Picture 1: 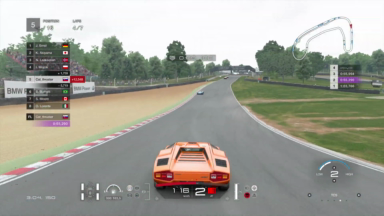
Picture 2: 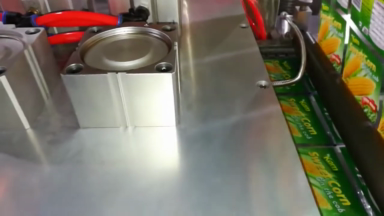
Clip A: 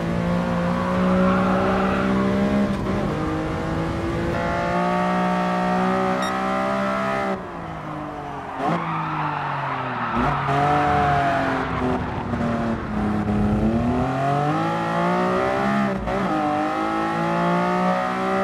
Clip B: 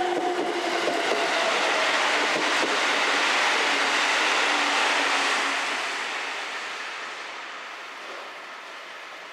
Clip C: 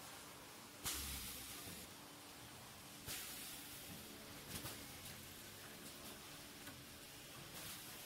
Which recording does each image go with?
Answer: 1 A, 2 C